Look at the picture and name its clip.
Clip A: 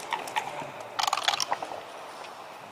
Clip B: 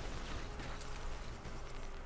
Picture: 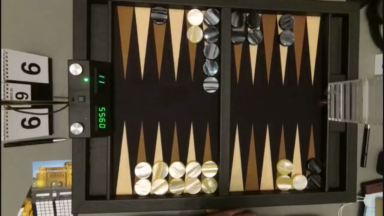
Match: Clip A